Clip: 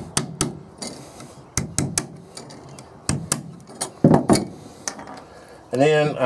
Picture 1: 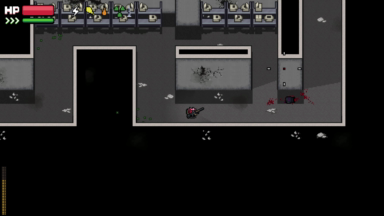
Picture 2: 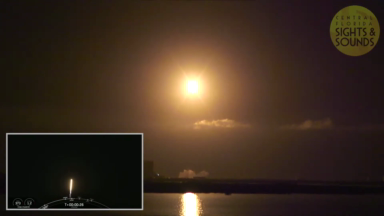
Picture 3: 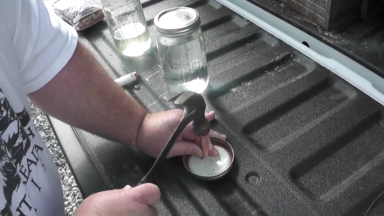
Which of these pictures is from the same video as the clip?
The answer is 3